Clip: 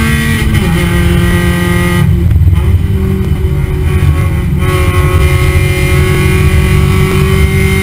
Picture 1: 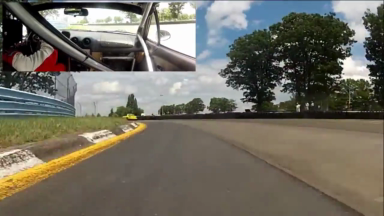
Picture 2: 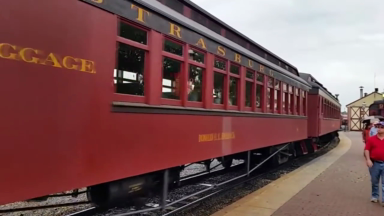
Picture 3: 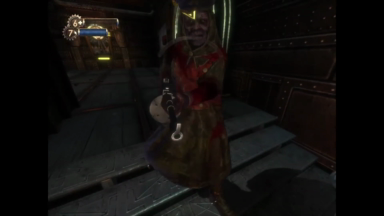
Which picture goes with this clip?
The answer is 1